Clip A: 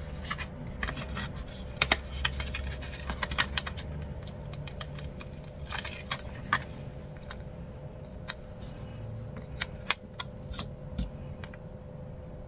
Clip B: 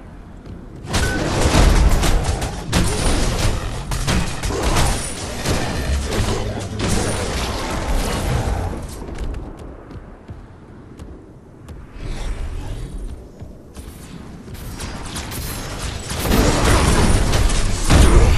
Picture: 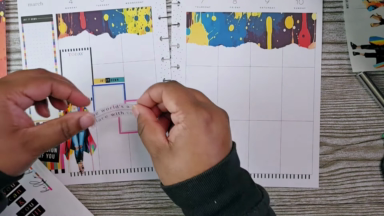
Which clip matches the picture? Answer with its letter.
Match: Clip A